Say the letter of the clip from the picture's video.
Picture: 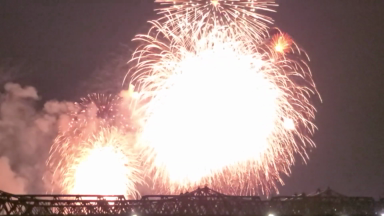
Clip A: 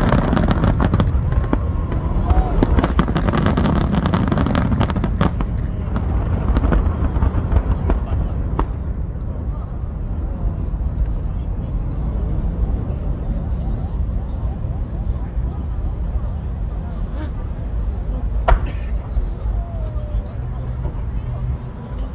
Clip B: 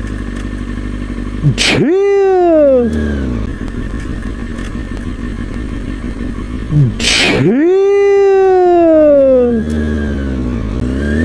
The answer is A